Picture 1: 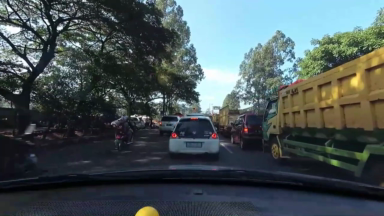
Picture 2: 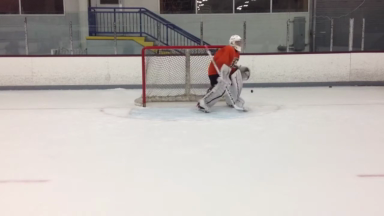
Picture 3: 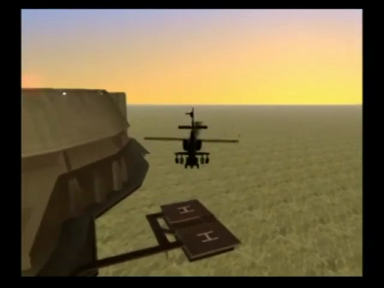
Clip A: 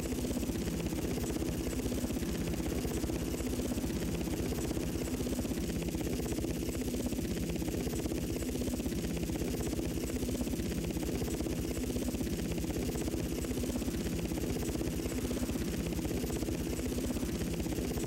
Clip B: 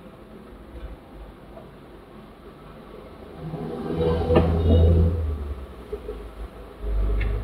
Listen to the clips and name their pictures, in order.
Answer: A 3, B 1